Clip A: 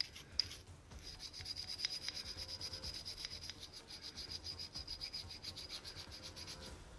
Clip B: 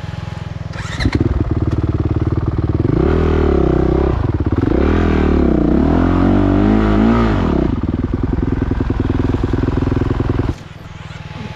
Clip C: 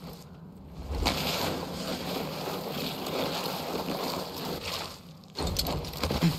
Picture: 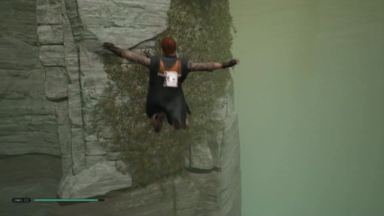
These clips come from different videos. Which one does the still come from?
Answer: C